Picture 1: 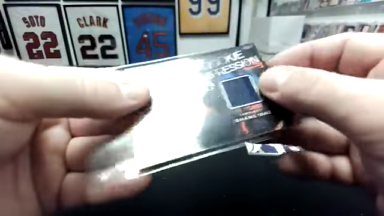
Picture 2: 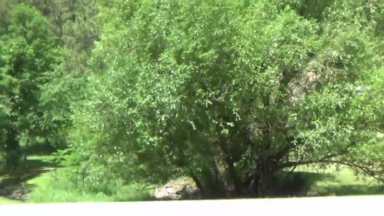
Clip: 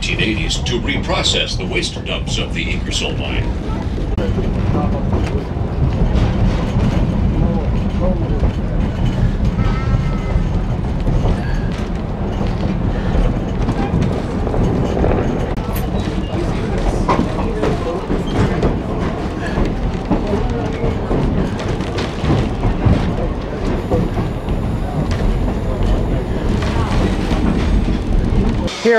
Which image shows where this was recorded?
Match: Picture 2